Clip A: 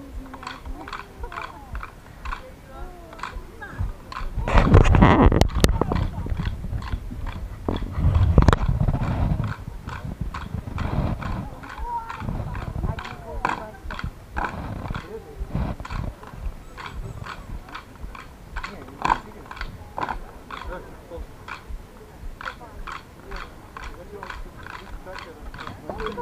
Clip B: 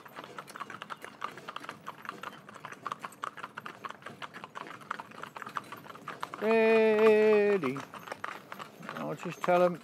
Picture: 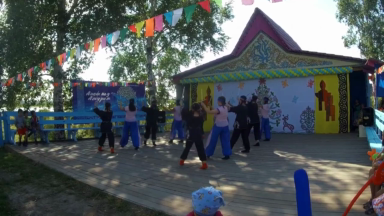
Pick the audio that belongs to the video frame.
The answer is A